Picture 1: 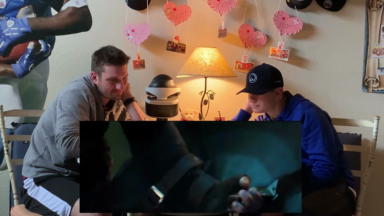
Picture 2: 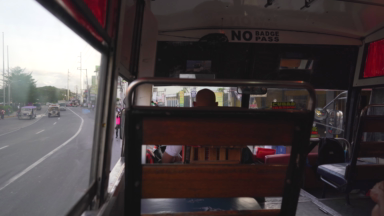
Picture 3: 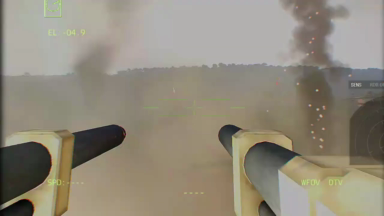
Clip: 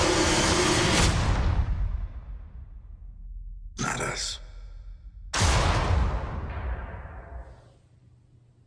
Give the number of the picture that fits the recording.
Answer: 1